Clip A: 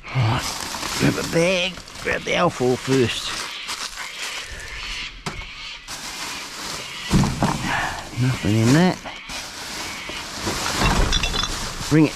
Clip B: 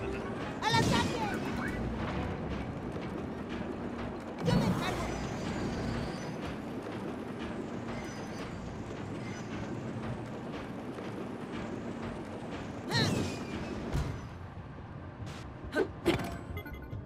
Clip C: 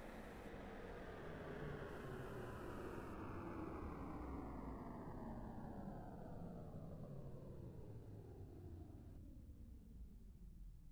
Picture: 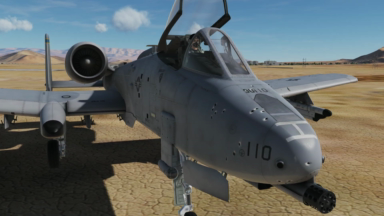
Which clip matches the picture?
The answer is C